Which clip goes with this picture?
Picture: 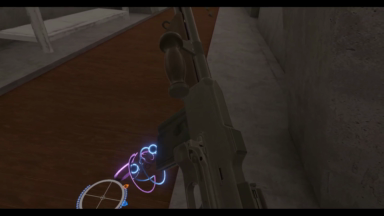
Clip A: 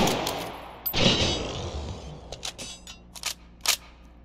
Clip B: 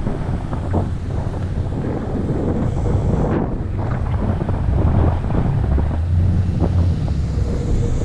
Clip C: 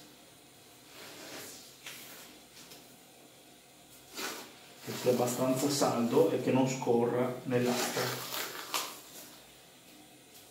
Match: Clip A